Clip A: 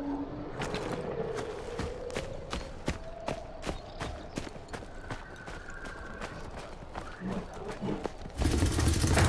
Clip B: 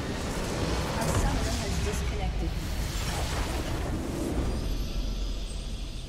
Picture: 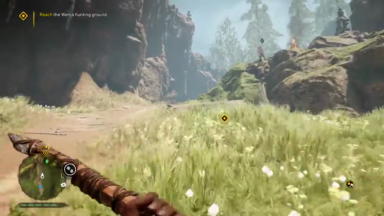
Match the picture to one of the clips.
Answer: A